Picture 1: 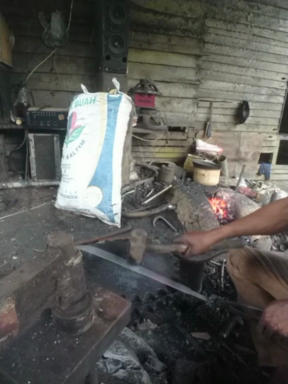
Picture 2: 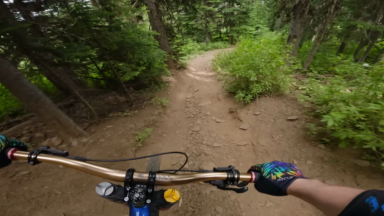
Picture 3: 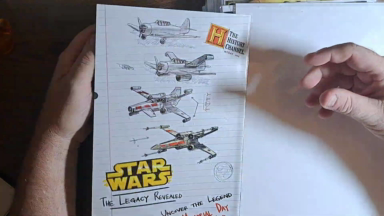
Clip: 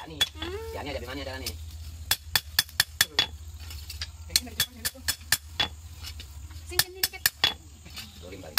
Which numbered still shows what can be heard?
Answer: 1